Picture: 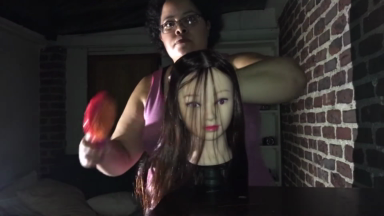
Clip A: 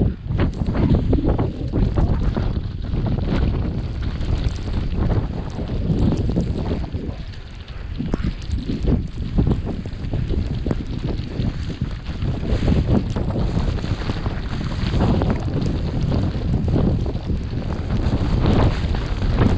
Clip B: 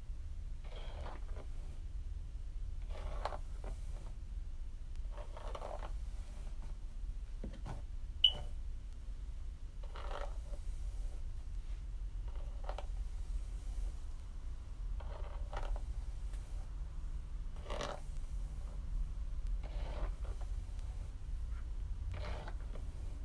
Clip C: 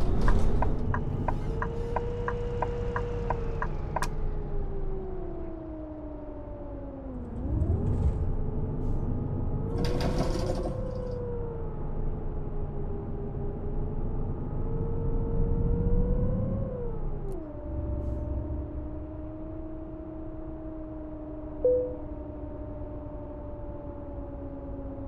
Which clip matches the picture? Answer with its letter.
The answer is B